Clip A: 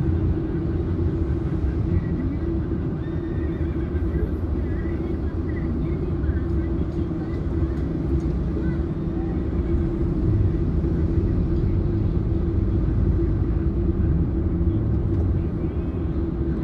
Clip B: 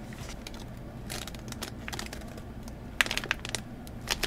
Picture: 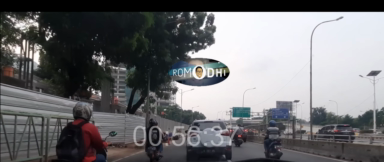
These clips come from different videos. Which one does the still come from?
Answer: A